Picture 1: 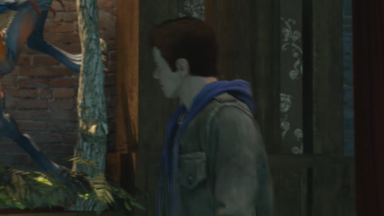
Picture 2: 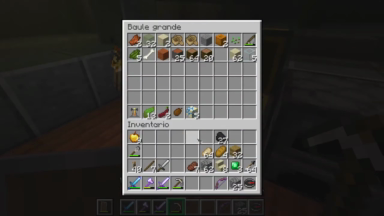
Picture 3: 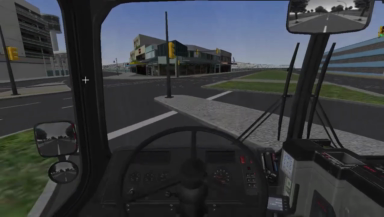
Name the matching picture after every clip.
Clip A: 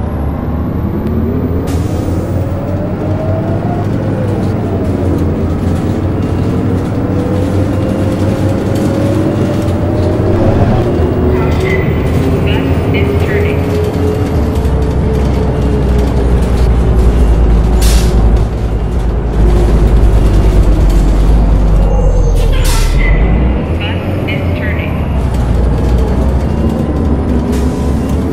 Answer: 3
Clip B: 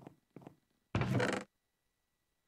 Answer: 2